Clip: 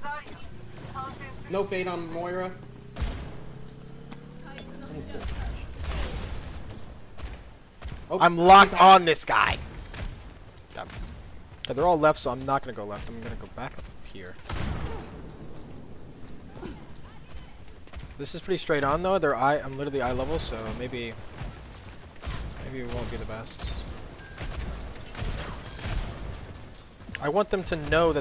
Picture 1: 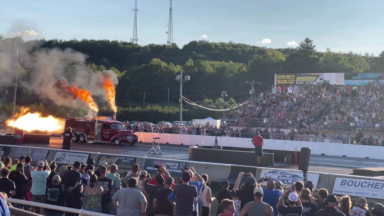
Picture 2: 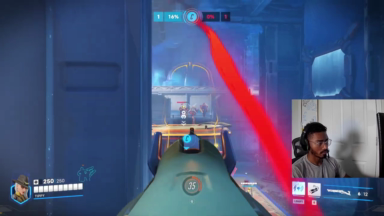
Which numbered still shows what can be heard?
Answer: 2